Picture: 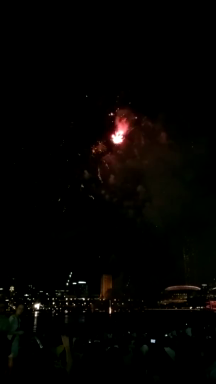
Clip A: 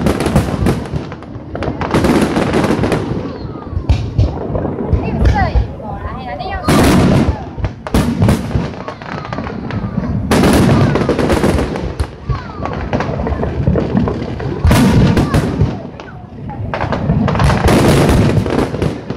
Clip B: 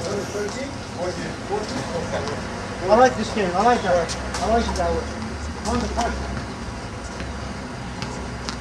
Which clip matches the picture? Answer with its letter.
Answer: A